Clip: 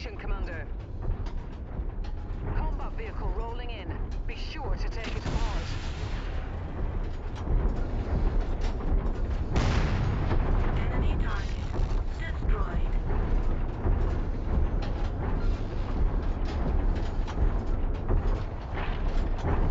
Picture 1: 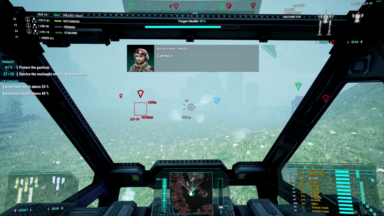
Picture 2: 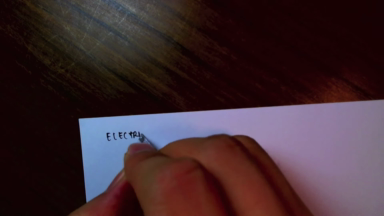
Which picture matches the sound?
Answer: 1